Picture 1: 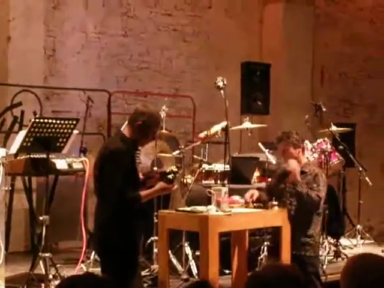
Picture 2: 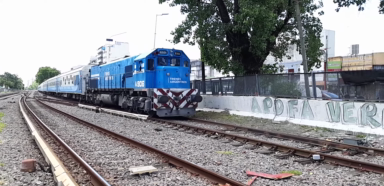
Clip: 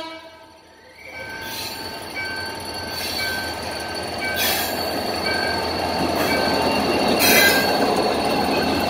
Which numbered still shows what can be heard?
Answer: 2